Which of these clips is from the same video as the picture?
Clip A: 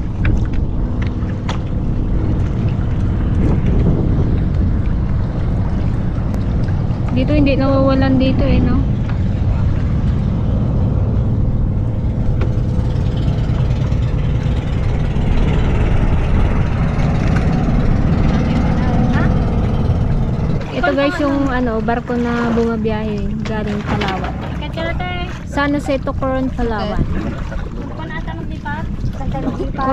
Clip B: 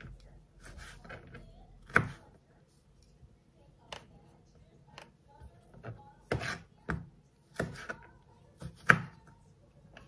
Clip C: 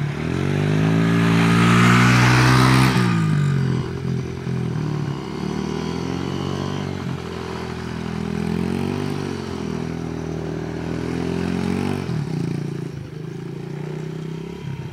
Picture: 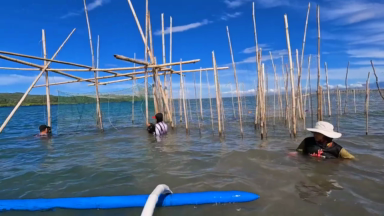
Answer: A